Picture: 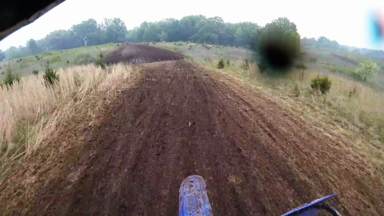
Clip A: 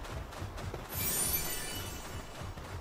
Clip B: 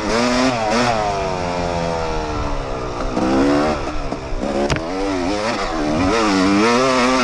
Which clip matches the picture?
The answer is B